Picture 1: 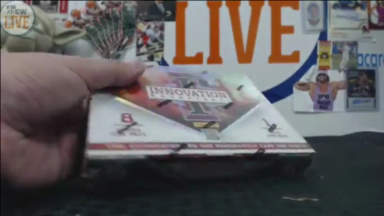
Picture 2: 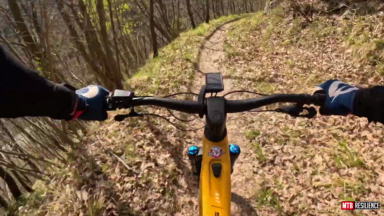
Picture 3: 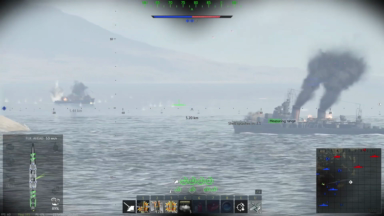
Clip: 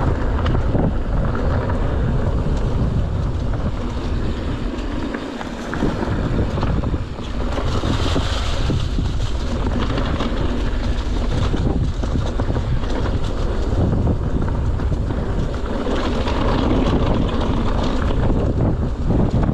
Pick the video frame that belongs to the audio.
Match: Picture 2